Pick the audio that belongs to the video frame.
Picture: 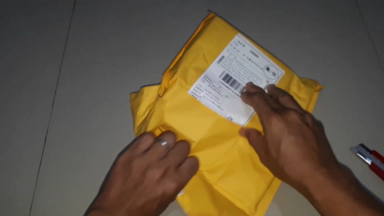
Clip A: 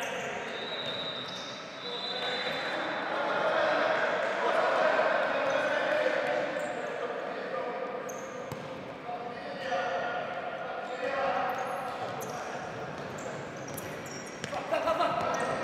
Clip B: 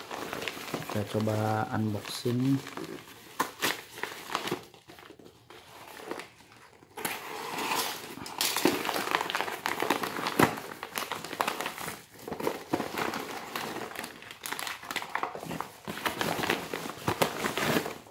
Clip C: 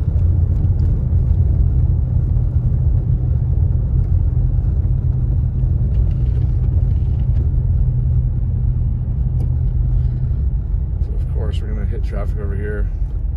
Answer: B